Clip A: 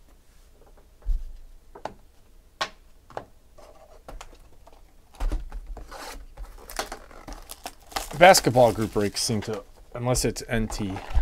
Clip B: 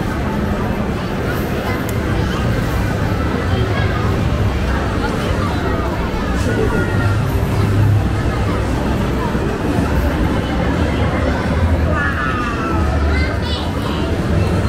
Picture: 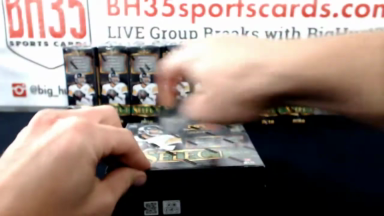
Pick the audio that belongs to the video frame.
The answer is A